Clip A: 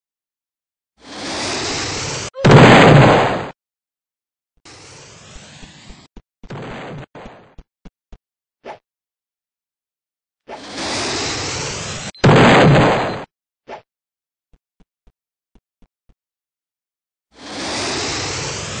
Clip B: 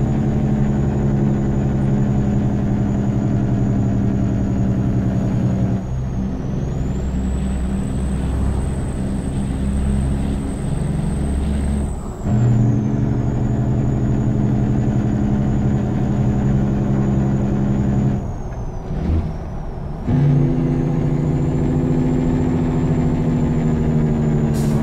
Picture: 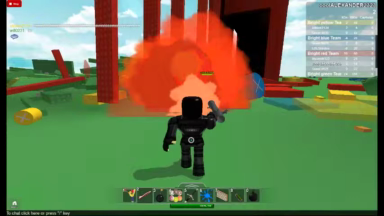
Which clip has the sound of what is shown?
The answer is A